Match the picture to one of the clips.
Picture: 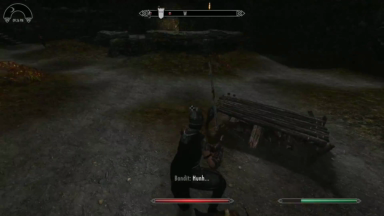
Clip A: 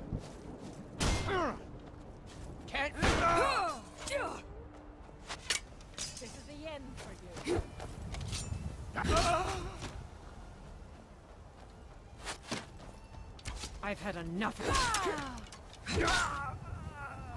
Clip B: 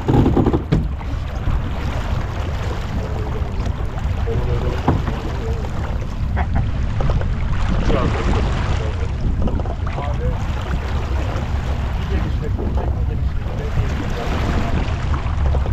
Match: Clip A